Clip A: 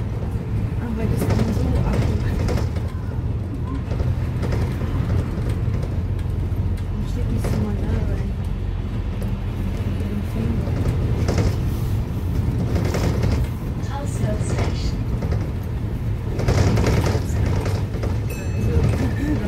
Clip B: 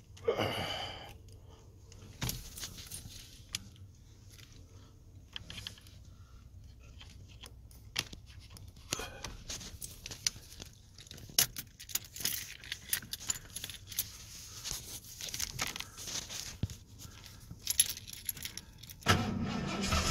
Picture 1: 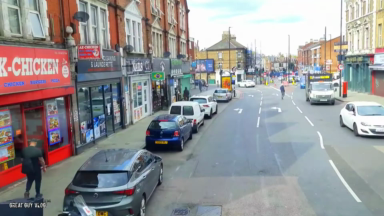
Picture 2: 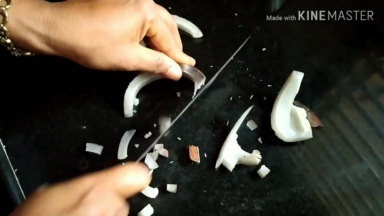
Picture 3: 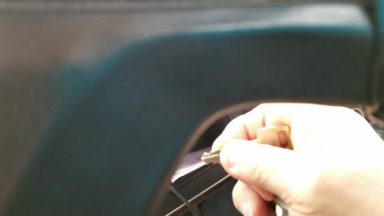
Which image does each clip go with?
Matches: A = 1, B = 3